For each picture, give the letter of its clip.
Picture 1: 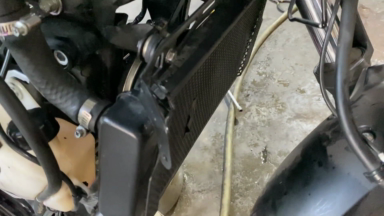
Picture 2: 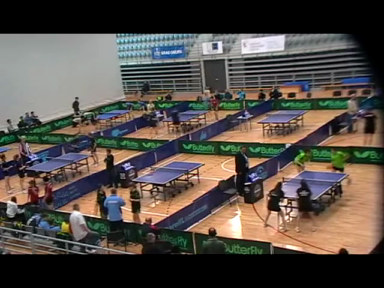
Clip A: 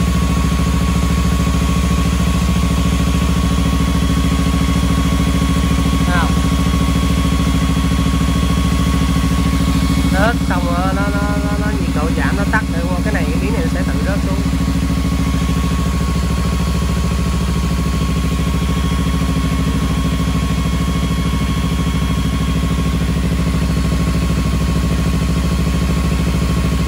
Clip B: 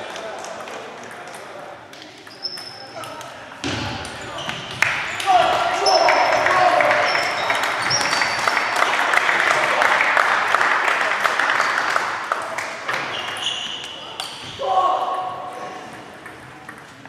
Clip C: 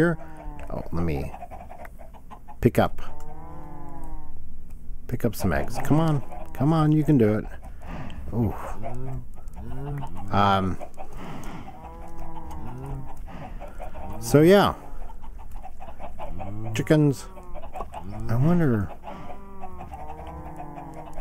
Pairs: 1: A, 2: B